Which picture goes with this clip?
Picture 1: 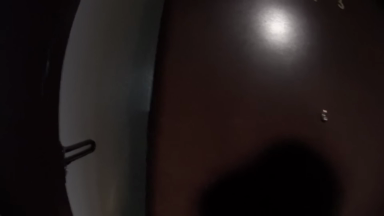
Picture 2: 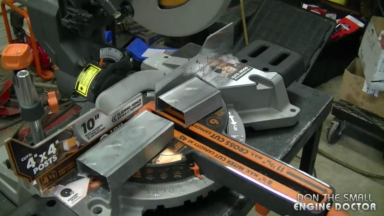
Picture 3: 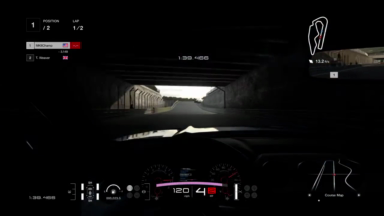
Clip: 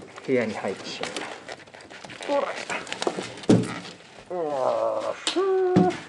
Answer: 1